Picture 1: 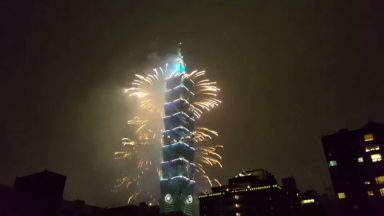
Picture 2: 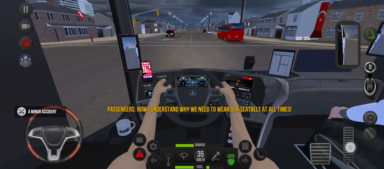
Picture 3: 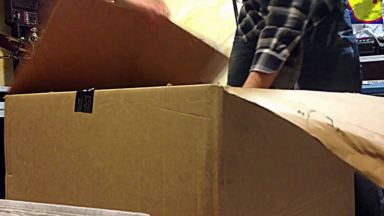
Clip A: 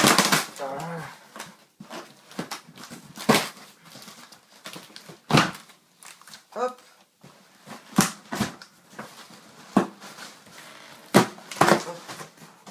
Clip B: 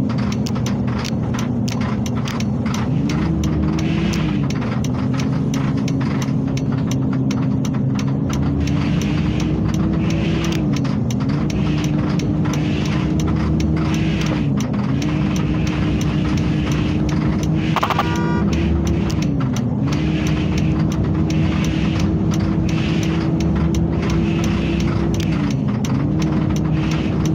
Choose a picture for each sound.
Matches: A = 3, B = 2